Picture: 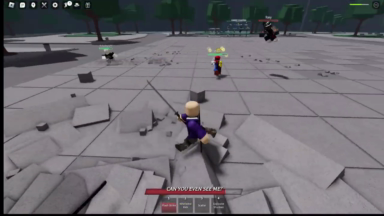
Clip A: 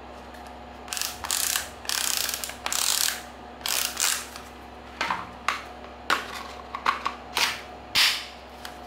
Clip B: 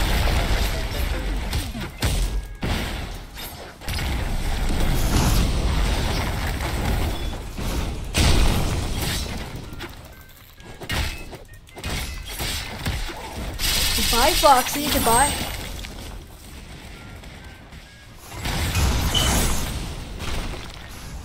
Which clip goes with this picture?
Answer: B